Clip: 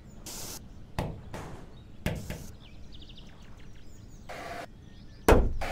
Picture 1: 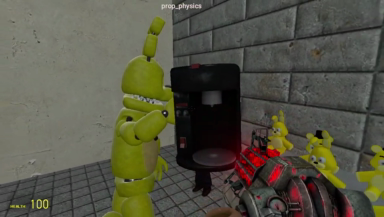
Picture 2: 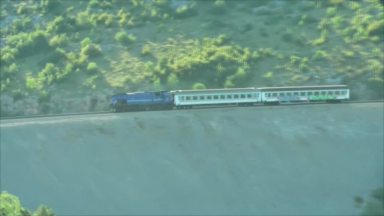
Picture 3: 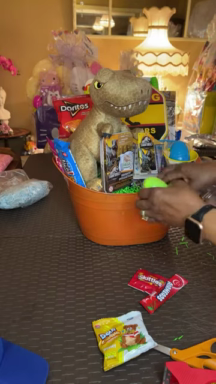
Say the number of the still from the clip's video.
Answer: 1